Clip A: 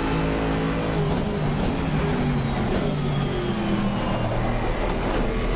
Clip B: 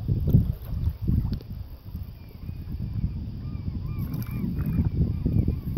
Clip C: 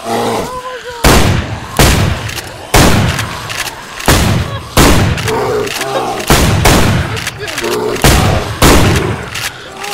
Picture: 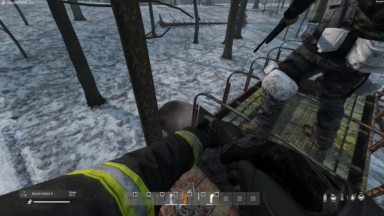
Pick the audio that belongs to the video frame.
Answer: C